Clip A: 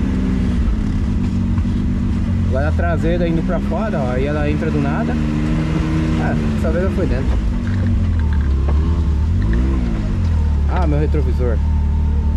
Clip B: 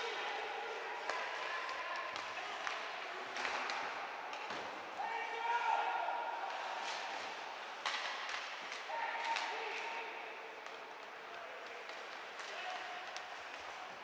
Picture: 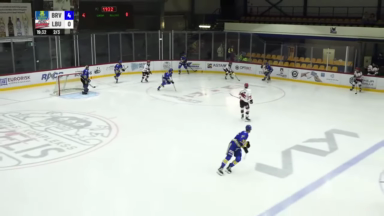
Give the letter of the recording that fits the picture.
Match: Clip B